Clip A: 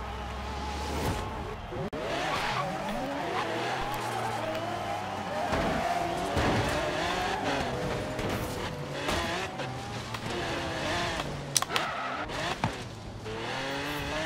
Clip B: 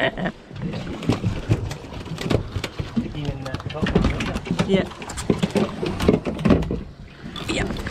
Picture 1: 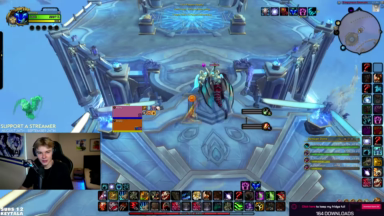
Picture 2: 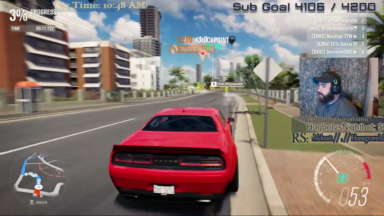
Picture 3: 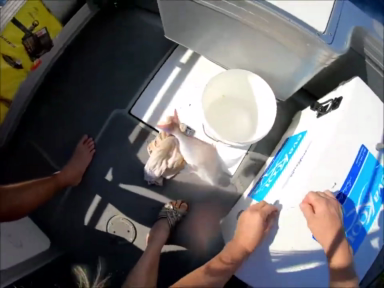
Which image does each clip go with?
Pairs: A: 2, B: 3